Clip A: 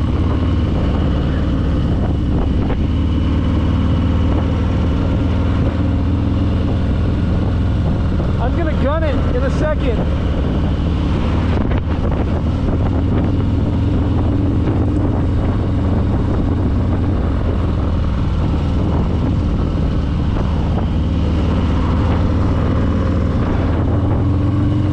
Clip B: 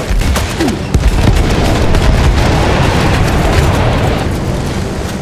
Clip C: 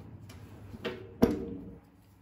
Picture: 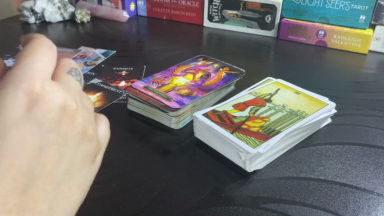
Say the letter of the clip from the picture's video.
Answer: C